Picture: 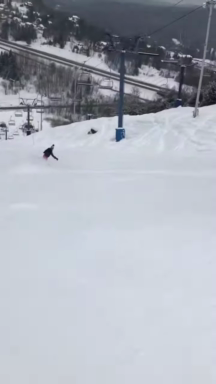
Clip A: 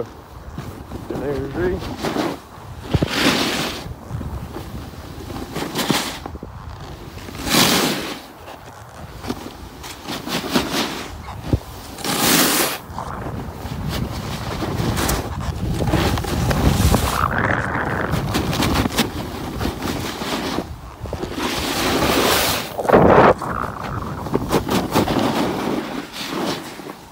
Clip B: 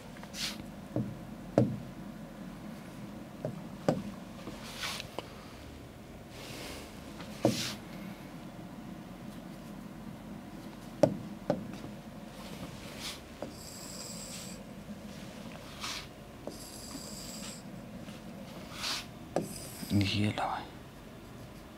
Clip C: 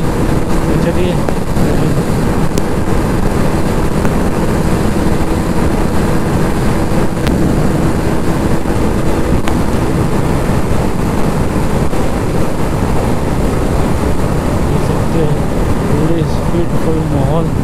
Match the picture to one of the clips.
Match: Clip A